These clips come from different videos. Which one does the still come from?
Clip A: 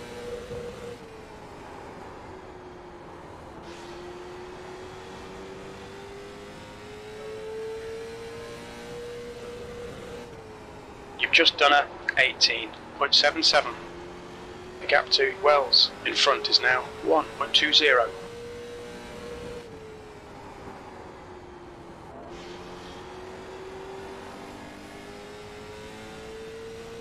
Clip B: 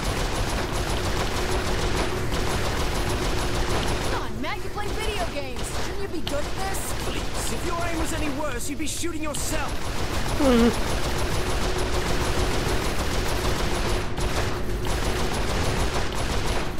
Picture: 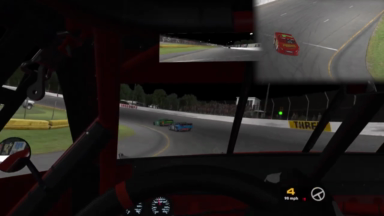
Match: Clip A